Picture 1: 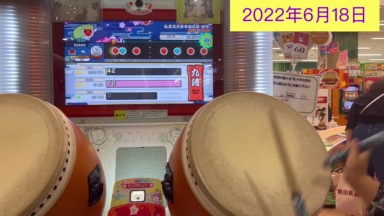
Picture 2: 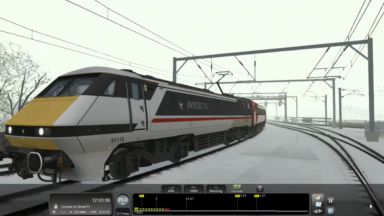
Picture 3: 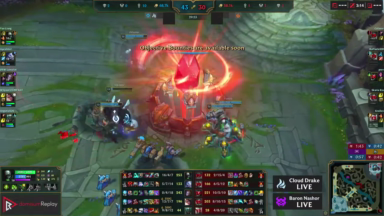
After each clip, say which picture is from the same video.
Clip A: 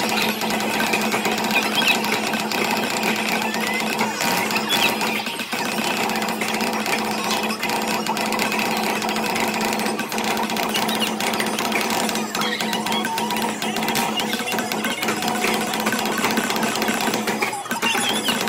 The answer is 1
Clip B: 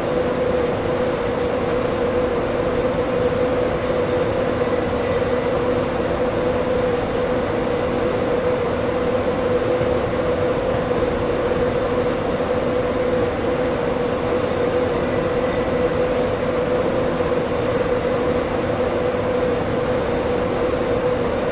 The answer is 2